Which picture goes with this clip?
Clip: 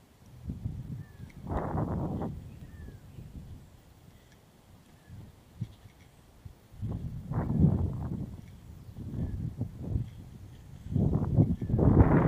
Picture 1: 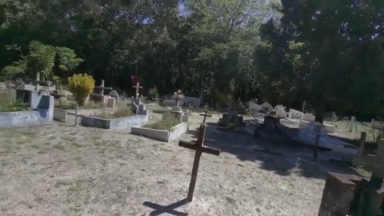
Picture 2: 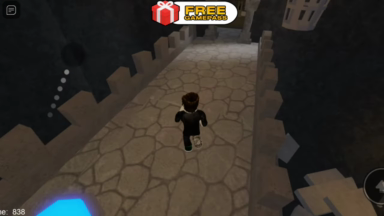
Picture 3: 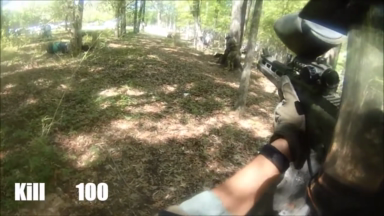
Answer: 1